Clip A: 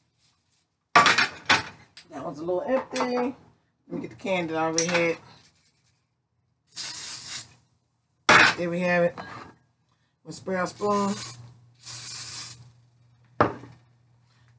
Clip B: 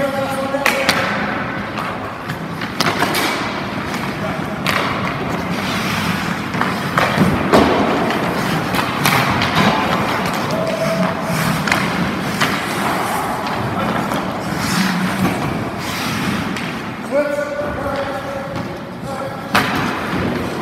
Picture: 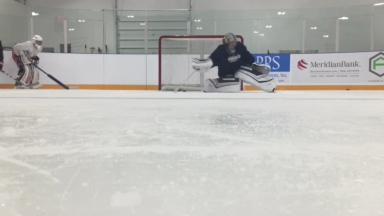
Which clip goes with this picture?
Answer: B